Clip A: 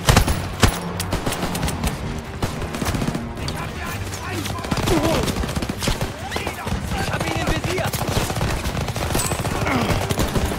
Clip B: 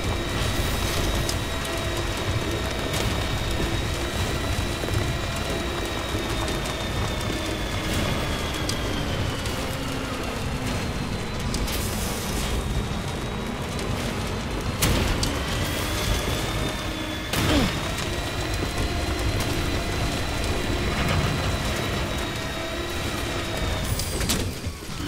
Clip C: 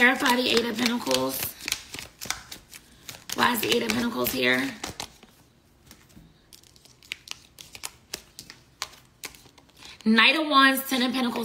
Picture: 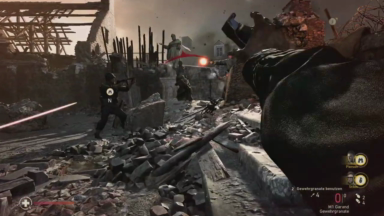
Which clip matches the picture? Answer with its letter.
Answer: A